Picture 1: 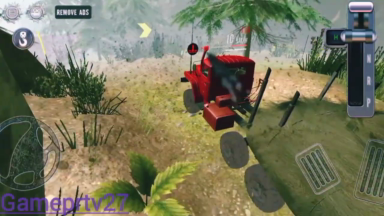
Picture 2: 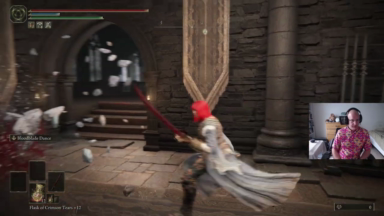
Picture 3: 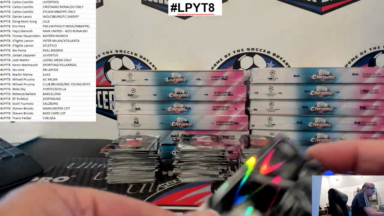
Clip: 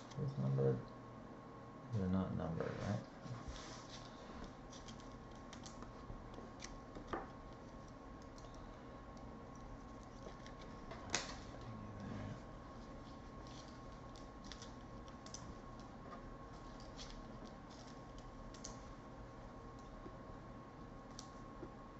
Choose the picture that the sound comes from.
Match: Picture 3